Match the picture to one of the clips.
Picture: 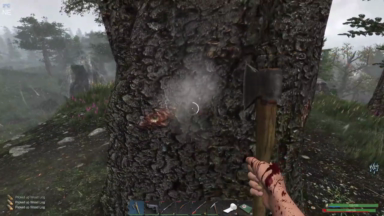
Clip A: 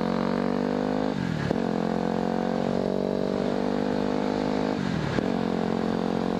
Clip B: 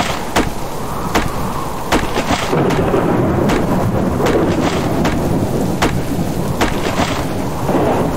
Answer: B